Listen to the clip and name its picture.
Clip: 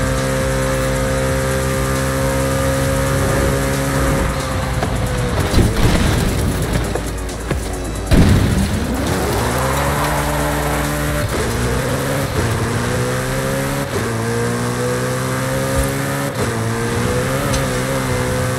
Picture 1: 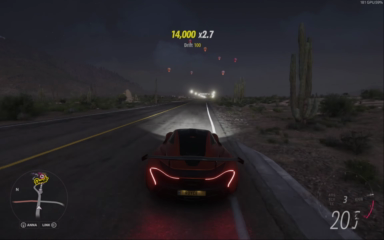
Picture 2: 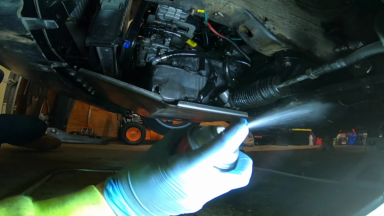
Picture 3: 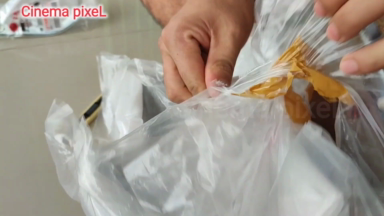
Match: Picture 1